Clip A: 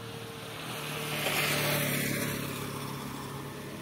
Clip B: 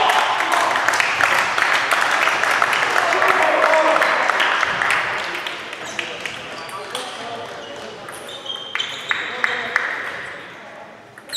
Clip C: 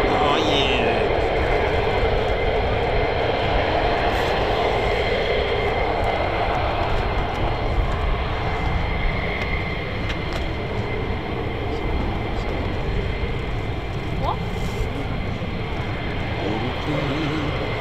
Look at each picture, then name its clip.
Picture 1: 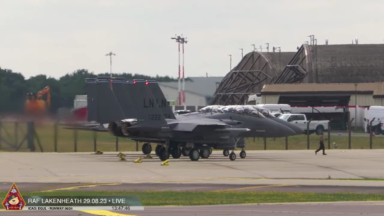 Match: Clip C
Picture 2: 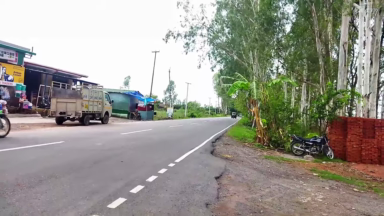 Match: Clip A